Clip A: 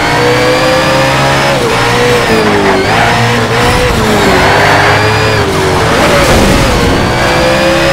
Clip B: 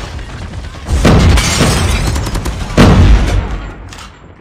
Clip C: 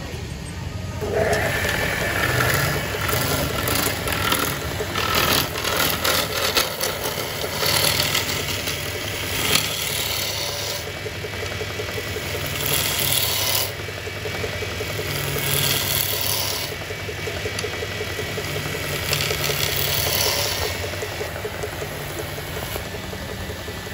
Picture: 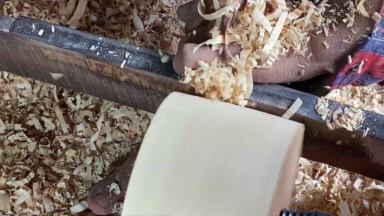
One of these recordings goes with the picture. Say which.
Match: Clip C